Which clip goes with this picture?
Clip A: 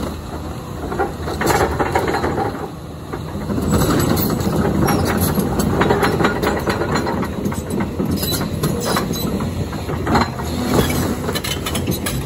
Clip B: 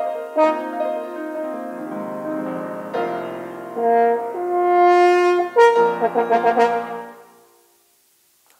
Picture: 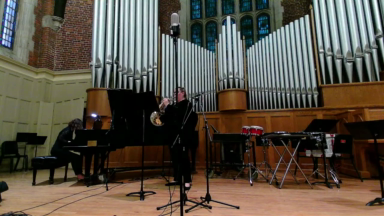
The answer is B